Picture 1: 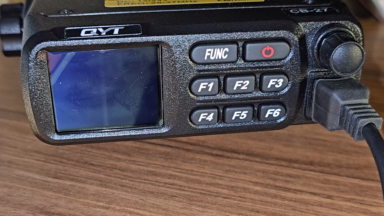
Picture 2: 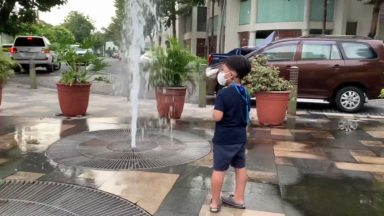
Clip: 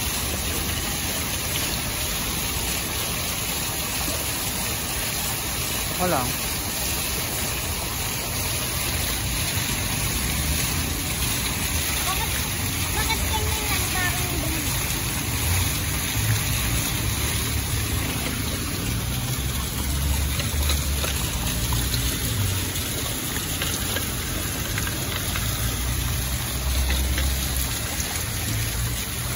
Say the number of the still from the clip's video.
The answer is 2